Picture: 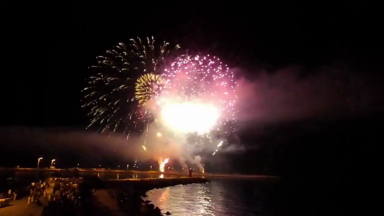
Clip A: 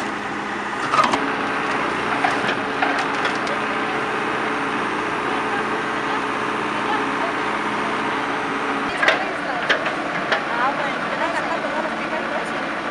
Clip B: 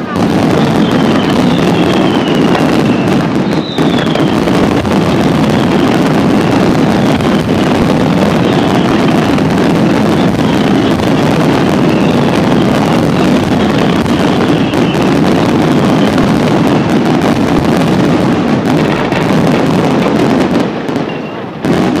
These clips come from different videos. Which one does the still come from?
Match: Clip B